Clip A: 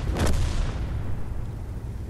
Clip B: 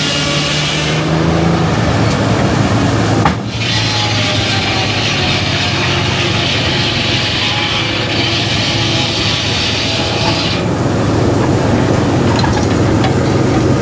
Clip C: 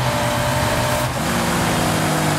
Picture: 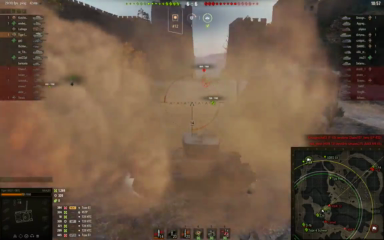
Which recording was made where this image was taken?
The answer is A